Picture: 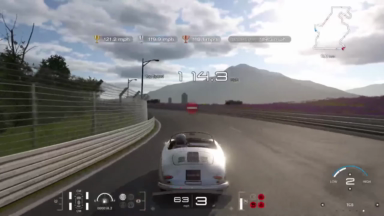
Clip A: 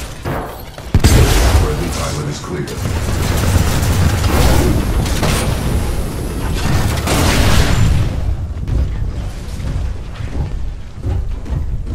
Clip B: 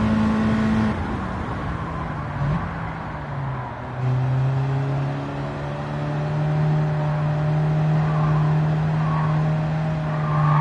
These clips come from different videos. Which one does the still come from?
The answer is B